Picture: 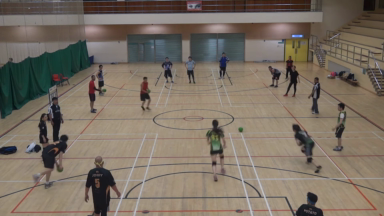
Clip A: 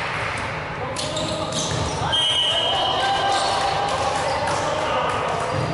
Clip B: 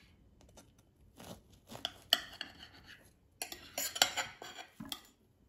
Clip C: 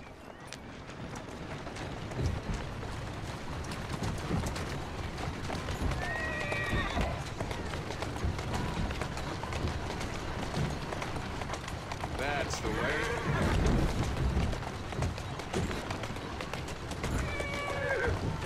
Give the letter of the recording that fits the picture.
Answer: A